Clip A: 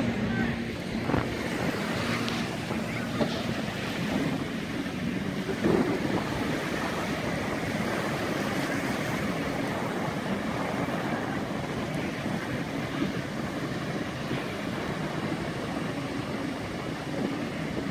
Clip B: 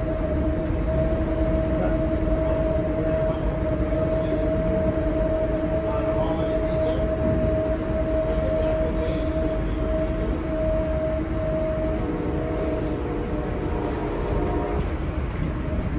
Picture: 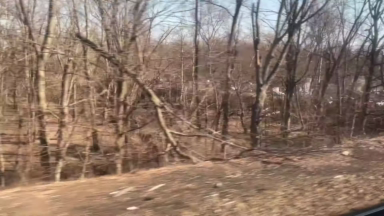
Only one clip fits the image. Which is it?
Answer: B